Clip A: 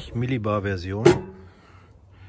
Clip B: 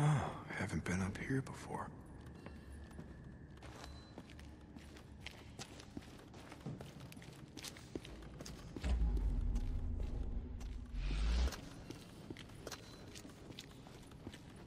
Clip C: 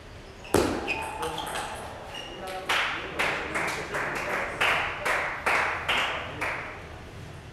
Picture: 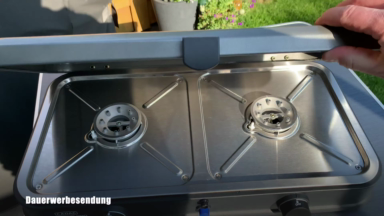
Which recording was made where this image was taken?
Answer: A